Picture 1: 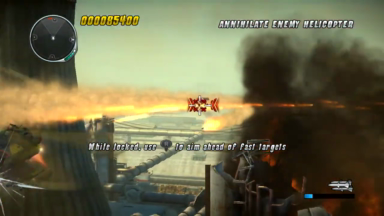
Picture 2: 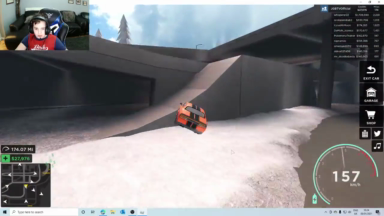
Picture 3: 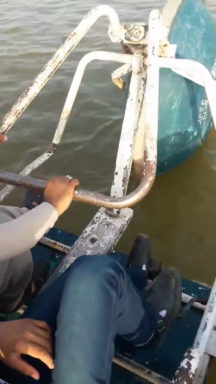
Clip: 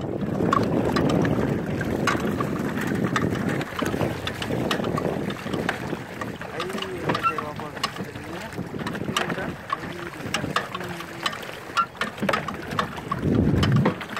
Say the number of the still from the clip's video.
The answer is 3